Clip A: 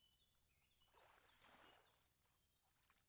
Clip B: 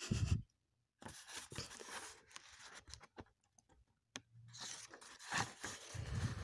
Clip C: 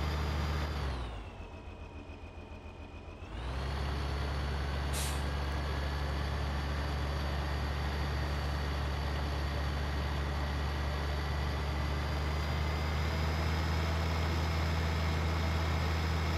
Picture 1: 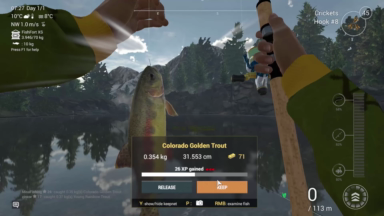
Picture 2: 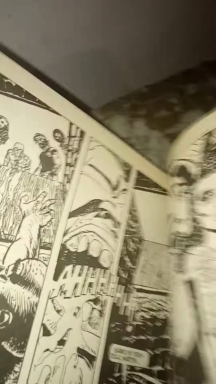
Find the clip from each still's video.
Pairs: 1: A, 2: B